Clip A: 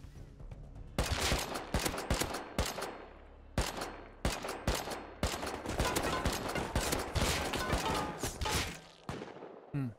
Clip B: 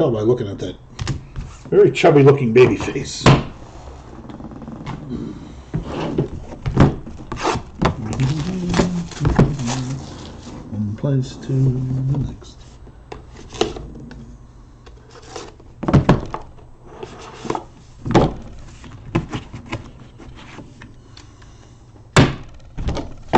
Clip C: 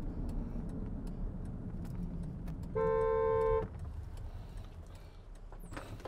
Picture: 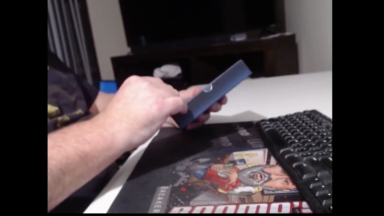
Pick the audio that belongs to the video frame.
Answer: B